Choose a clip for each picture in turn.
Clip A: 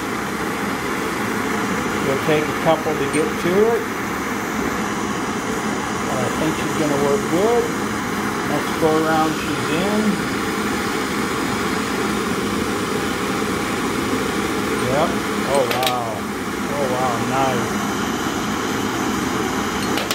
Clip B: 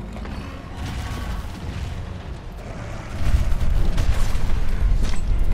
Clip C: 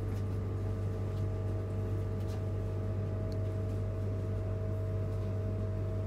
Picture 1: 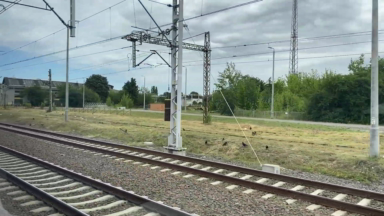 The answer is C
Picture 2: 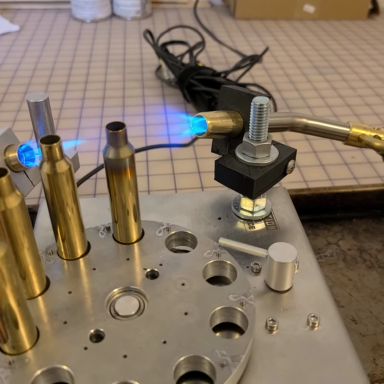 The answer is A